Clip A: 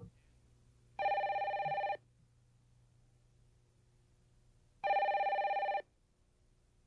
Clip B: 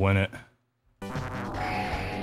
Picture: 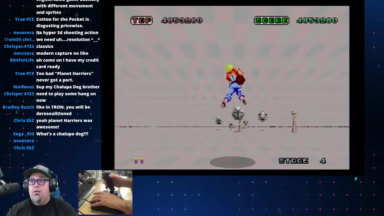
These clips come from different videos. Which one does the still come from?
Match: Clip B